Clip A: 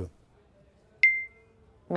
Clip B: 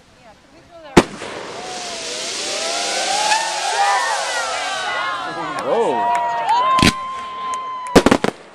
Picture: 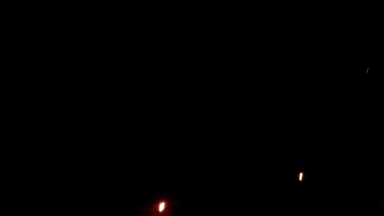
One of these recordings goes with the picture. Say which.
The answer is B